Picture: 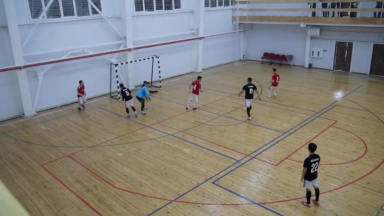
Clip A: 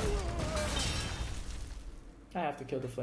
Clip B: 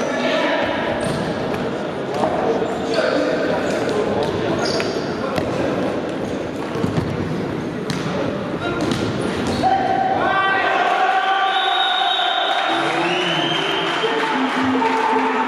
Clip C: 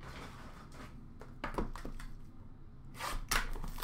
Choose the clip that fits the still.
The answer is B